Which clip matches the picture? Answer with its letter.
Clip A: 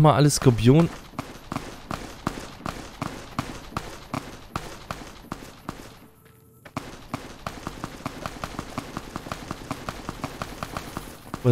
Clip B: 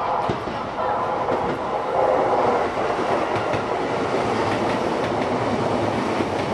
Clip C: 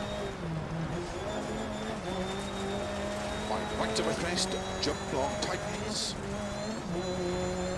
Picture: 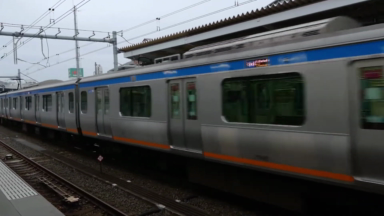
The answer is B